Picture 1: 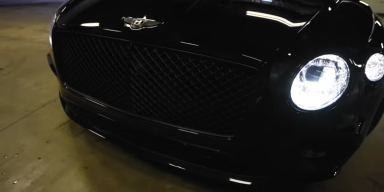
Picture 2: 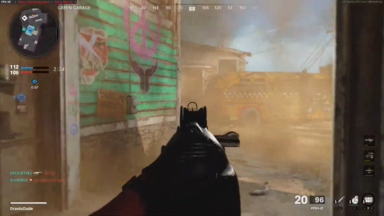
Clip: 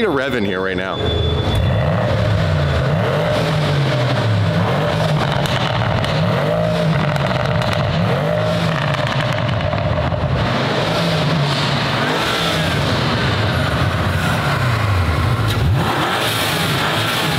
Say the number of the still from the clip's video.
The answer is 1